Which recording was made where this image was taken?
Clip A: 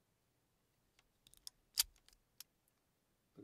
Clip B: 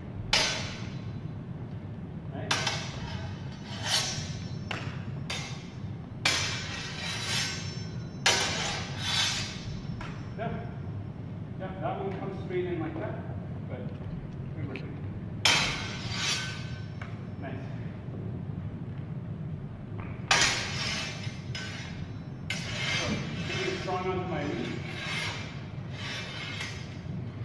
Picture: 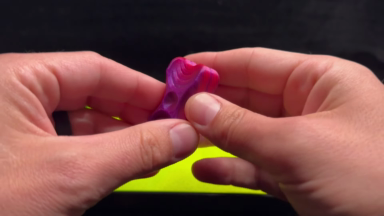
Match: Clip A